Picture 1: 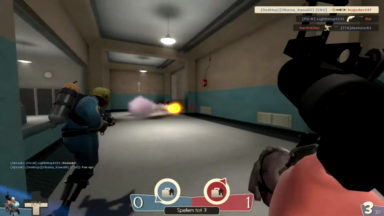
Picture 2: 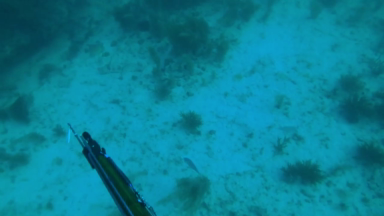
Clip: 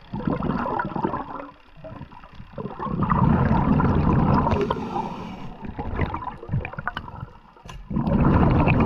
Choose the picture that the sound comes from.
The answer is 2